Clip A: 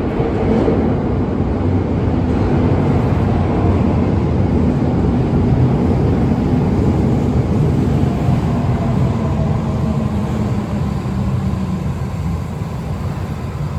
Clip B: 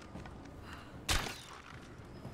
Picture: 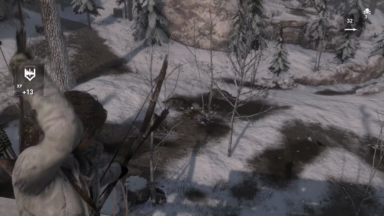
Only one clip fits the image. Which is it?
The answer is B